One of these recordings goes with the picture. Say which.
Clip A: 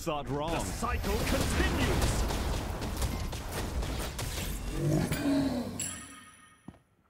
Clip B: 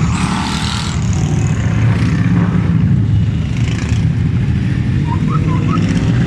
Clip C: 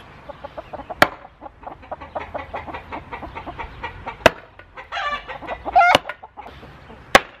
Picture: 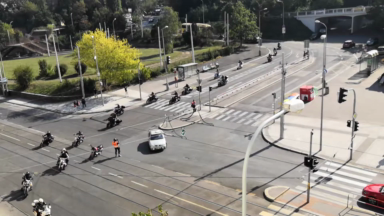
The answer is B